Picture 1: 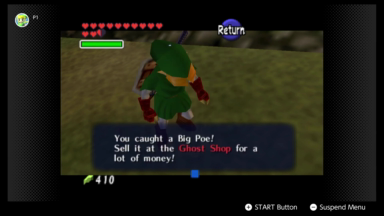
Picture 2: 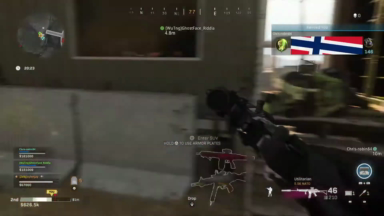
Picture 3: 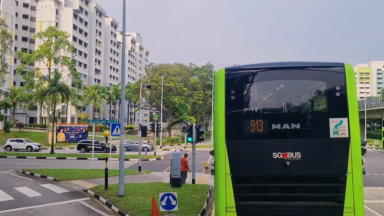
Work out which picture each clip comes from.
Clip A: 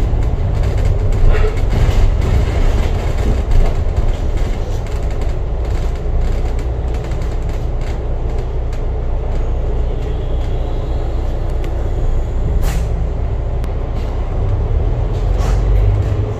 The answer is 3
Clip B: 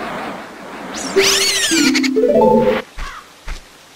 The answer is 1